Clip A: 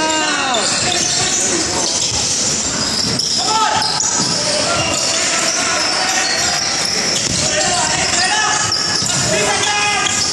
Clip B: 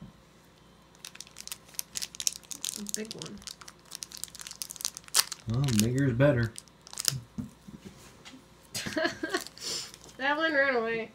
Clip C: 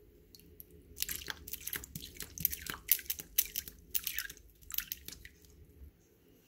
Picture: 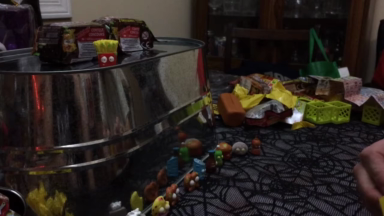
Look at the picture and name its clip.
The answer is B